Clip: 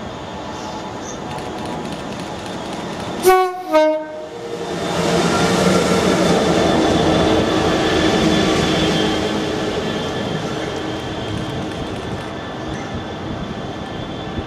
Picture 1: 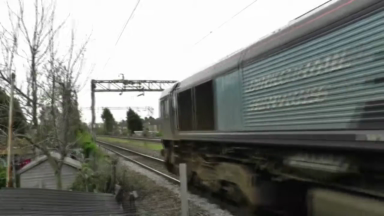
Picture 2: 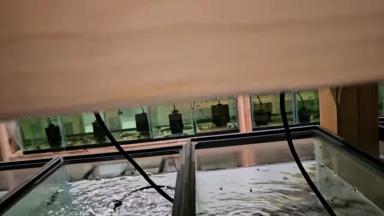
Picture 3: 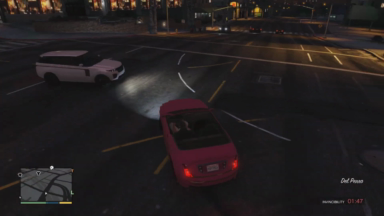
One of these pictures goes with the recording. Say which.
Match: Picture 1